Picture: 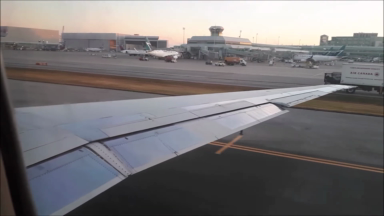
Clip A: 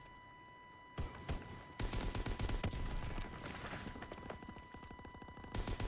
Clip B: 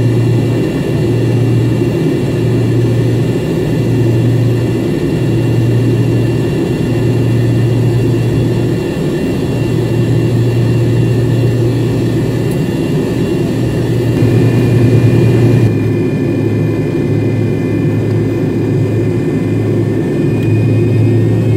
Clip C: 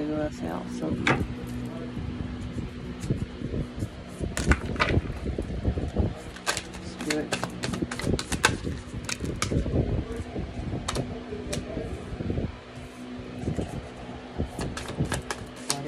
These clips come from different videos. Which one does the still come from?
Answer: B